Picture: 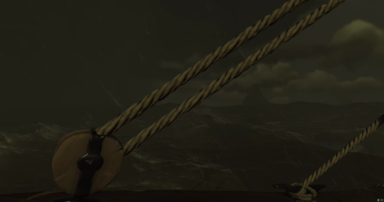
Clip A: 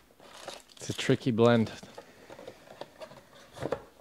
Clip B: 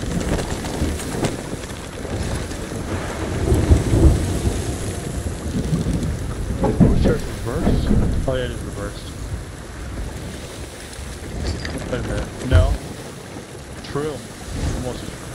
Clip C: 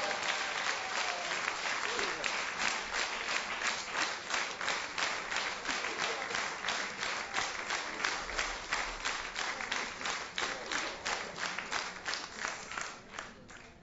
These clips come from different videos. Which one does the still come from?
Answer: B